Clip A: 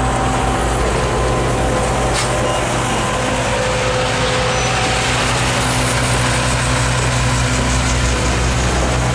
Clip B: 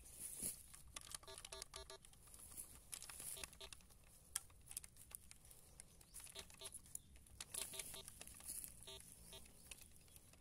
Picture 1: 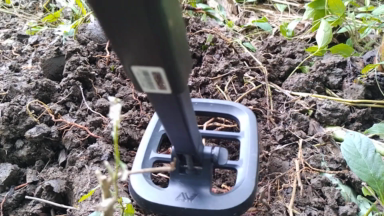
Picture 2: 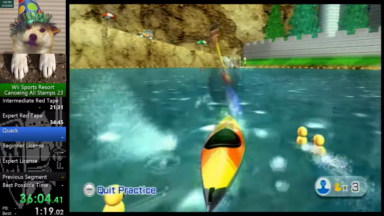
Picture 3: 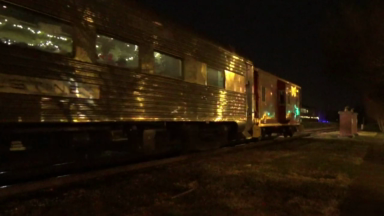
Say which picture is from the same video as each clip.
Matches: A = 3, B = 1